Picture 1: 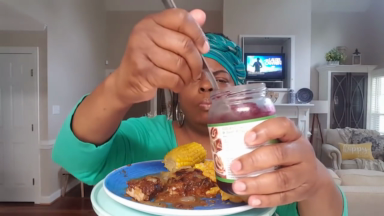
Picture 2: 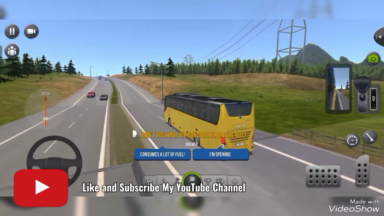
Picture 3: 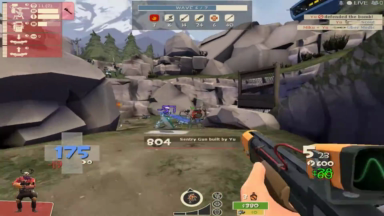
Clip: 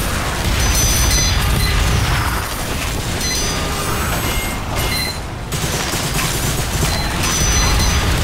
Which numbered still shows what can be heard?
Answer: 3